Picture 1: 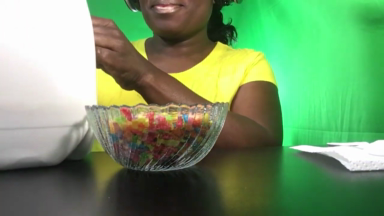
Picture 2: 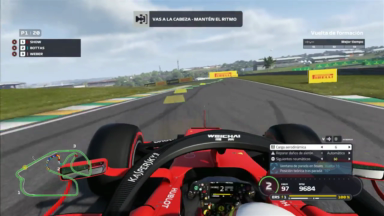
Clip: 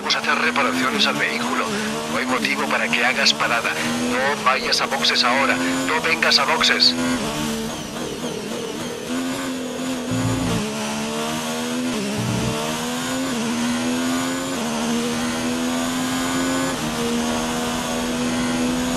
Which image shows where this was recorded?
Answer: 2